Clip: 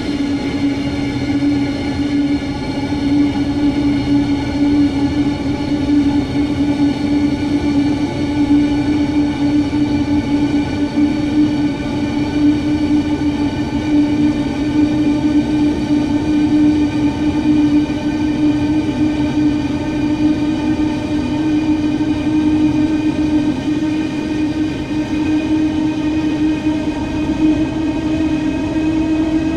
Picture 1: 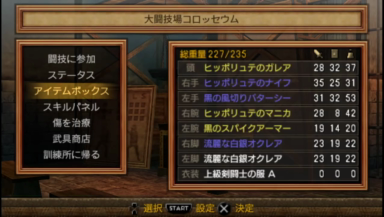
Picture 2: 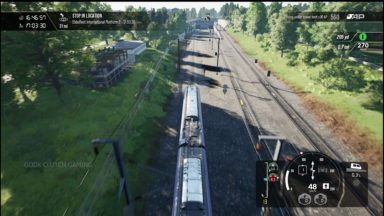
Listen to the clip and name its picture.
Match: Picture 2